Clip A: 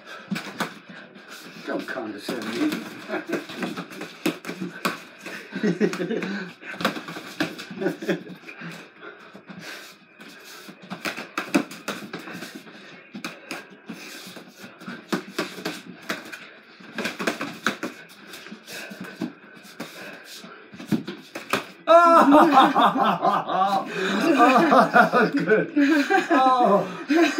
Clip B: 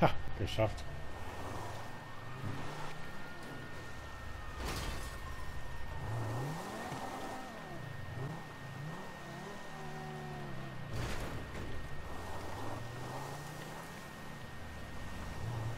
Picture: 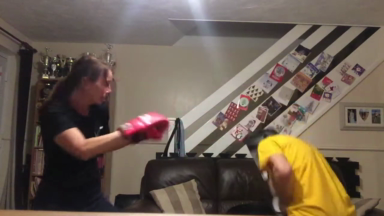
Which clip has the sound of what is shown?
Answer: A